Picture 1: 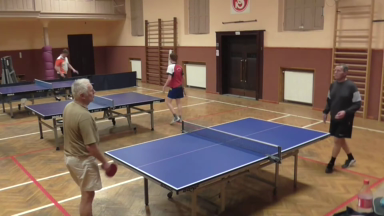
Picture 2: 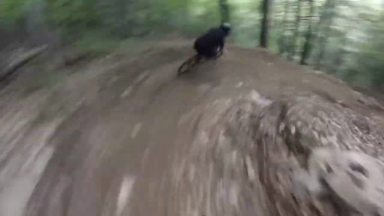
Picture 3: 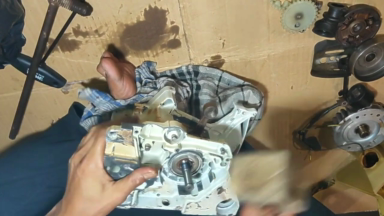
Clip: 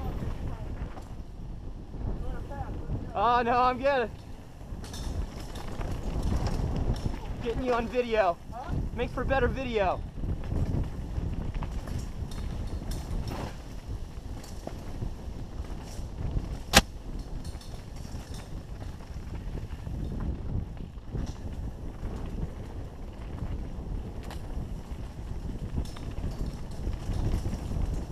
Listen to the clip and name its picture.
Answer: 2